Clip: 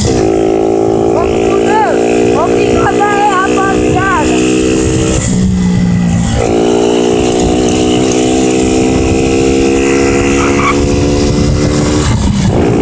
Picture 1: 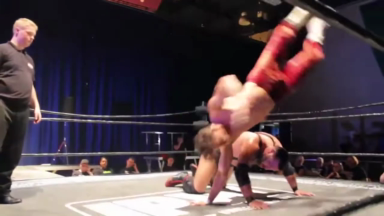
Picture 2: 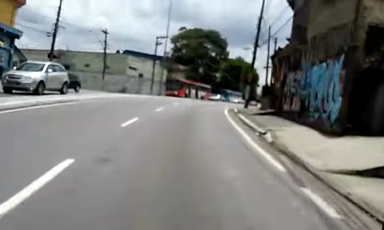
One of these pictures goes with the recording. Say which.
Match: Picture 2